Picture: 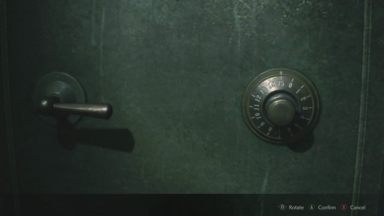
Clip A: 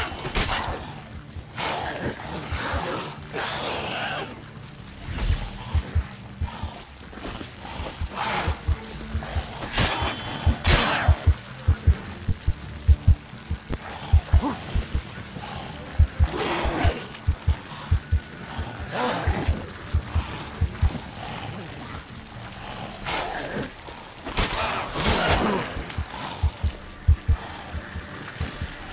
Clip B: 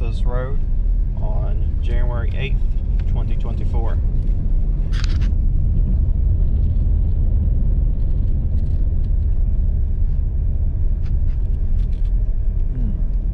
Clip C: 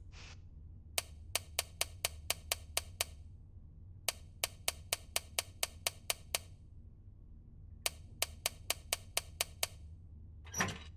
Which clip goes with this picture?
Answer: C